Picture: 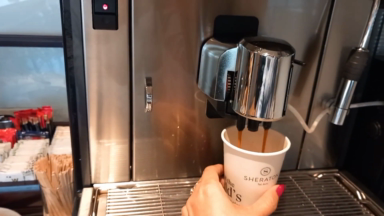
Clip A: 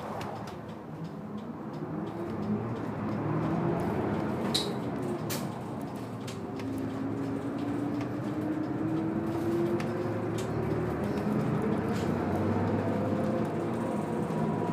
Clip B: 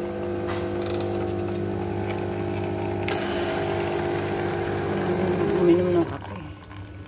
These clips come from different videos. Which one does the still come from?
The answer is B